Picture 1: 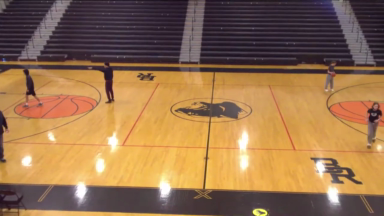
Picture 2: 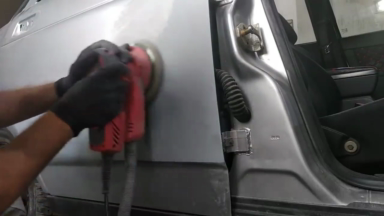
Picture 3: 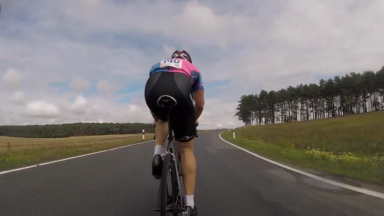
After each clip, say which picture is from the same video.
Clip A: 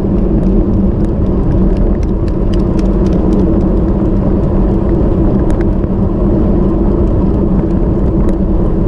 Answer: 3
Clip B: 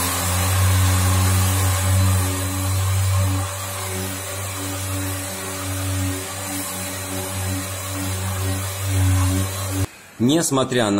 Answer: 2